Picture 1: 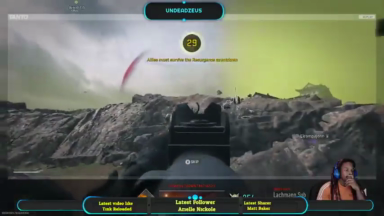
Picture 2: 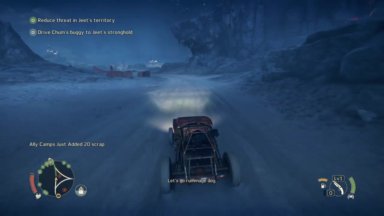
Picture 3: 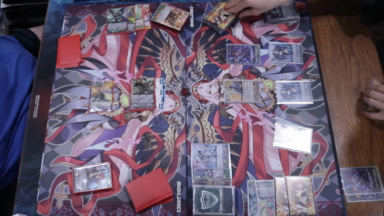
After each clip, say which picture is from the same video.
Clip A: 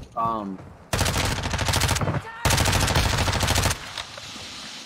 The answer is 1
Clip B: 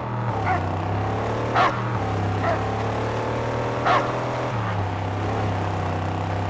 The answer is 2